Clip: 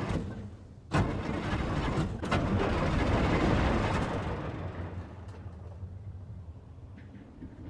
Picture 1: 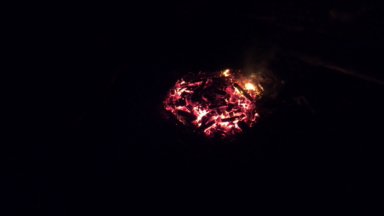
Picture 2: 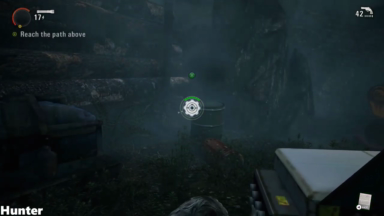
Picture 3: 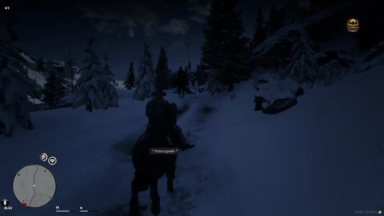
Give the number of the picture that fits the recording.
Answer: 2